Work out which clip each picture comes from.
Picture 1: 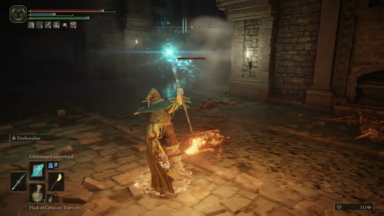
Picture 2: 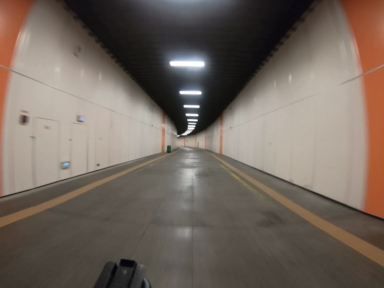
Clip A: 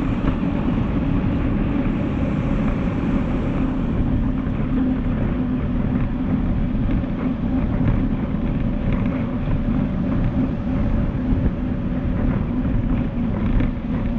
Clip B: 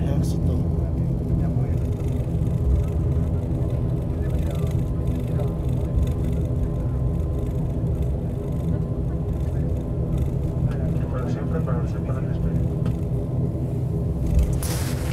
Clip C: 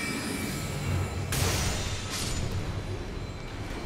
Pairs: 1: C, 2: A